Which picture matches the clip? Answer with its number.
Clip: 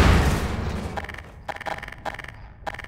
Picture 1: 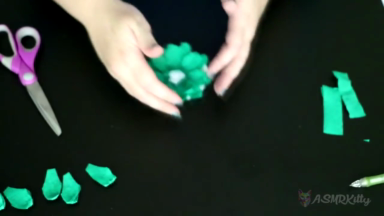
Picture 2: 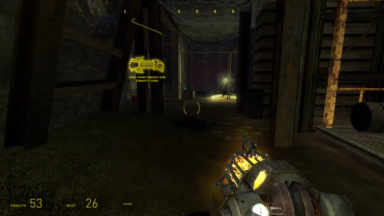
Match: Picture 2